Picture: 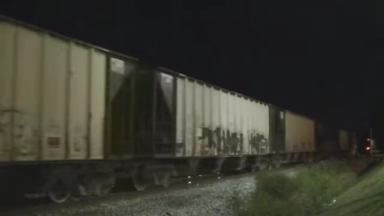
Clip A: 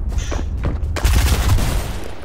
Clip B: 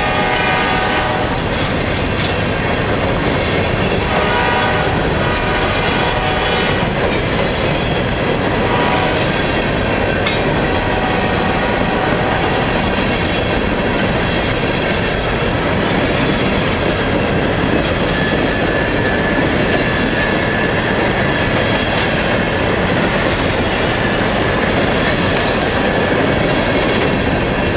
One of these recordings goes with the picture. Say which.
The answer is B